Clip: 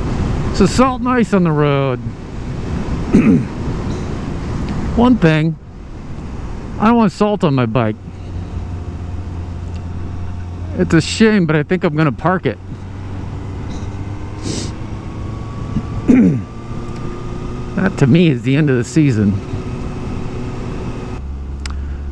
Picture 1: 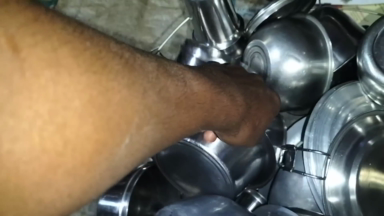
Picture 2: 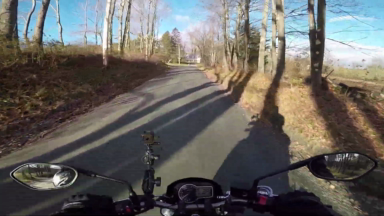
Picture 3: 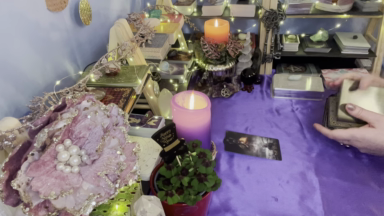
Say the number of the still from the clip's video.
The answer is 2